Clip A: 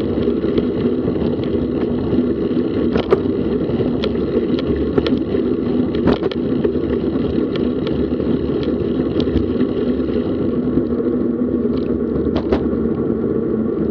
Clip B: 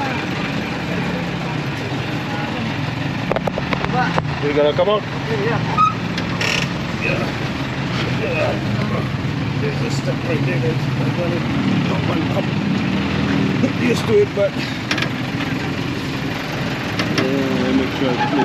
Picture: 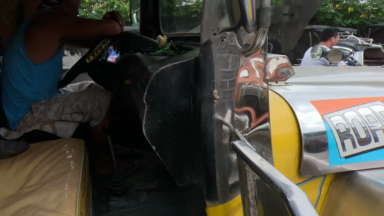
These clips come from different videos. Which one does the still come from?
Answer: B